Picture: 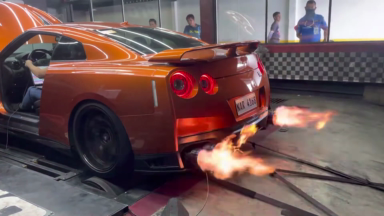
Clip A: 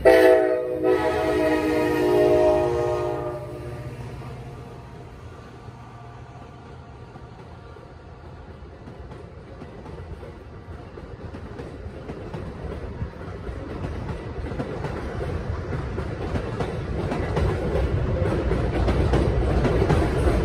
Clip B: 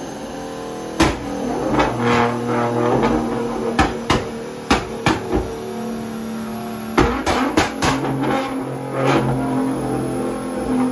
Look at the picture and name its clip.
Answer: B